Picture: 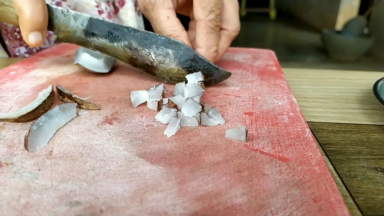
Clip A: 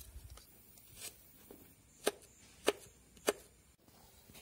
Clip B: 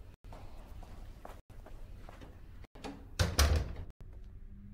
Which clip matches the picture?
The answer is A